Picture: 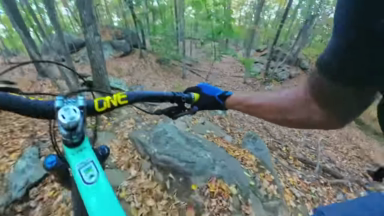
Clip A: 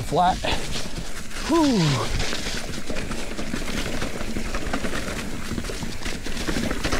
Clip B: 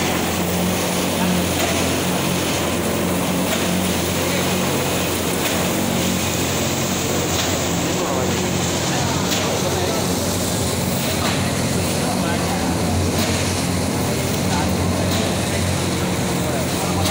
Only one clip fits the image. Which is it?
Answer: A